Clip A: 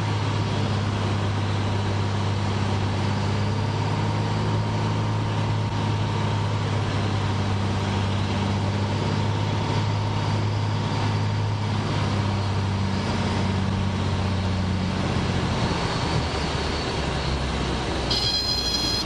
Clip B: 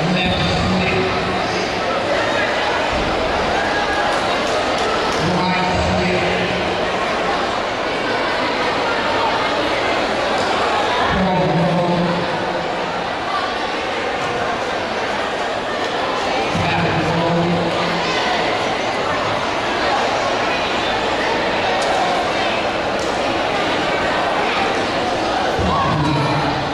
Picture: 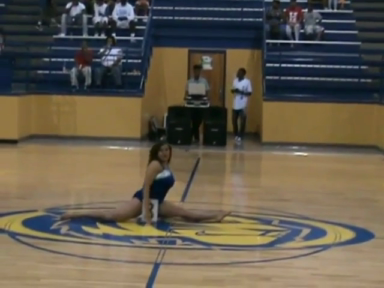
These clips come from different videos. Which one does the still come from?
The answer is B